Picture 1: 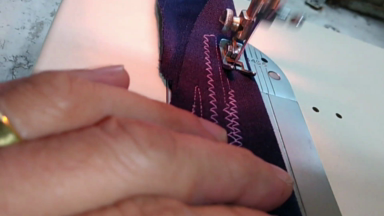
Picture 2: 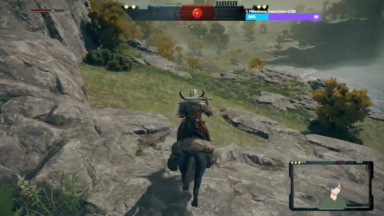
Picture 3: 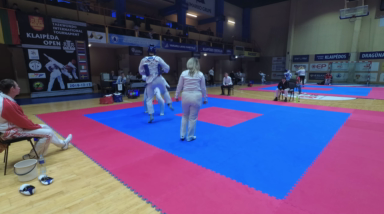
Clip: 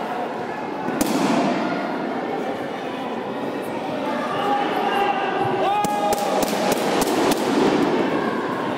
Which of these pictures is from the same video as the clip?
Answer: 3